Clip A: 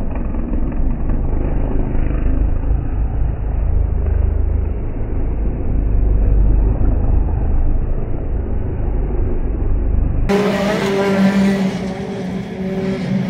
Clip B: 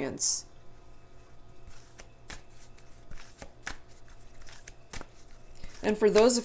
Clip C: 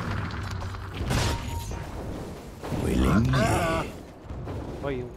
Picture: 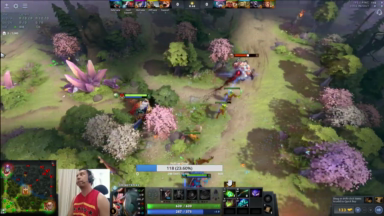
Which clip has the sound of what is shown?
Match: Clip C